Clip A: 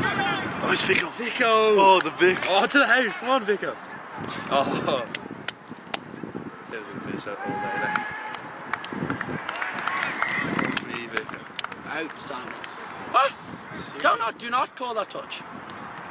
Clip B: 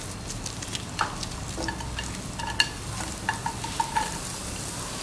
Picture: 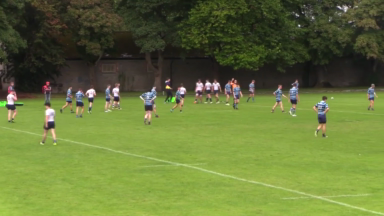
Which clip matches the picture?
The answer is A